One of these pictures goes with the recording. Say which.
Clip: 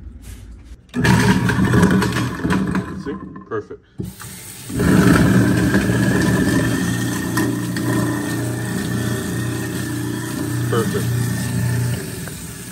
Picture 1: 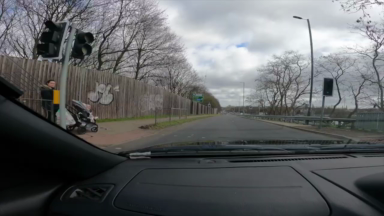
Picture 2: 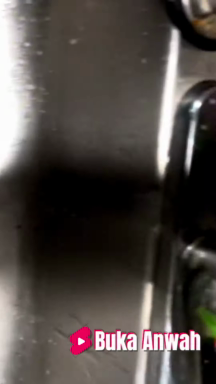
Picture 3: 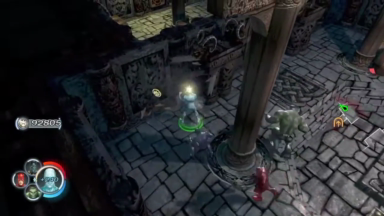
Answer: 2